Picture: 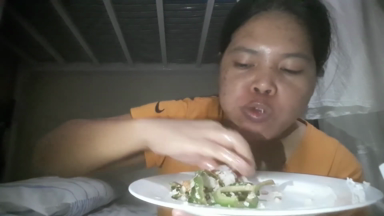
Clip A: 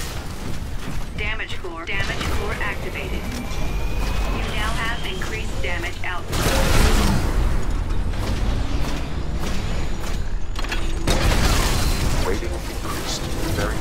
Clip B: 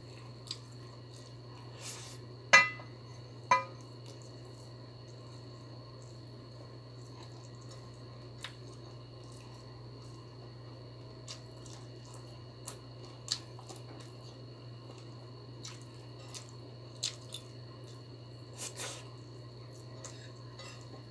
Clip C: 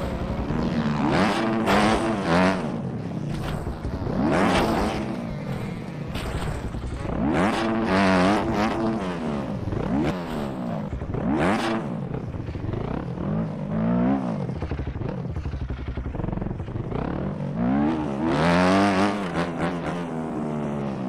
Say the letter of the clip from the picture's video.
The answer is B